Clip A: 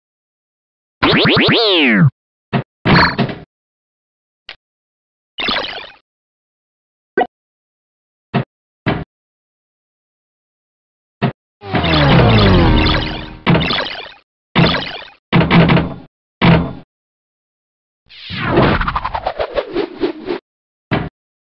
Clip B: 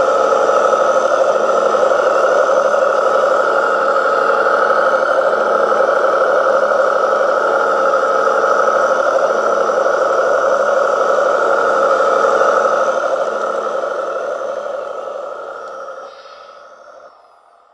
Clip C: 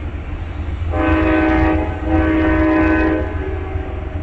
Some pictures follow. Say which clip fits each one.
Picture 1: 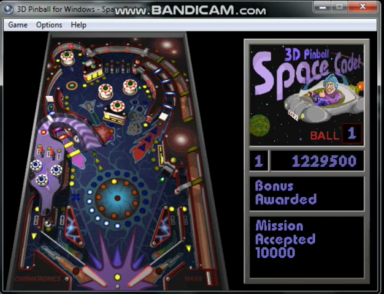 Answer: A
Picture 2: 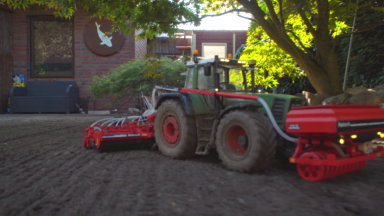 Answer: B